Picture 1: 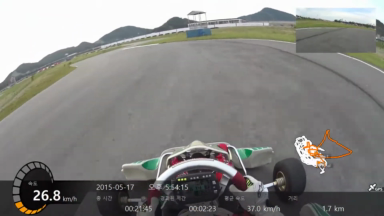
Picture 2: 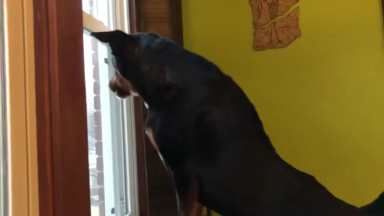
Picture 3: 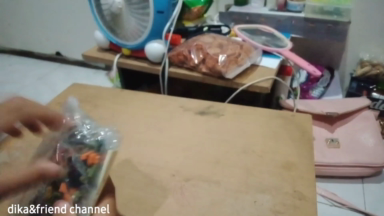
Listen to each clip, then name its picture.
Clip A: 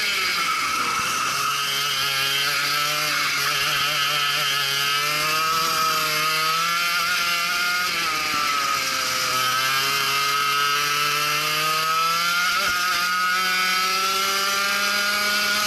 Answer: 1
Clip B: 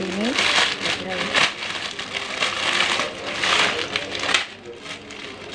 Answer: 3